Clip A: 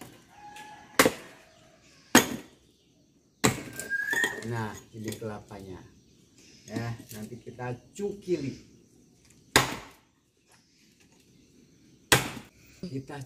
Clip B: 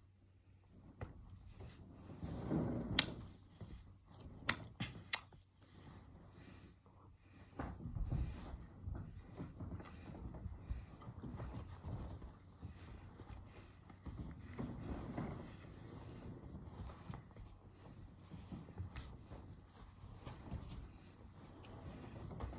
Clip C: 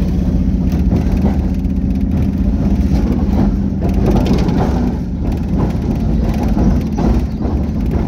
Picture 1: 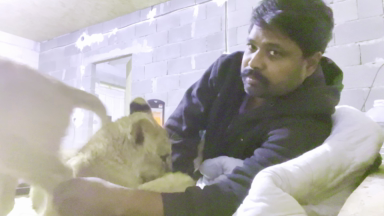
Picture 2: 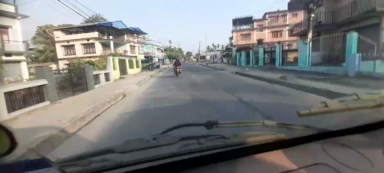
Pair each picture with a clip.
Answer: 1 B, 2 C